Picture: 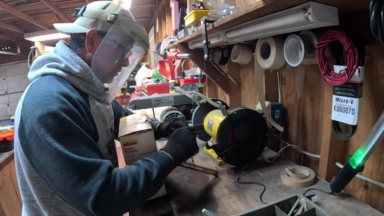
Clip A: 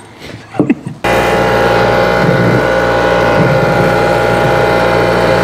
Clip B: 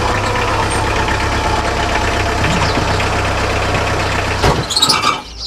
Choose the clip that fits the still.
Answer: A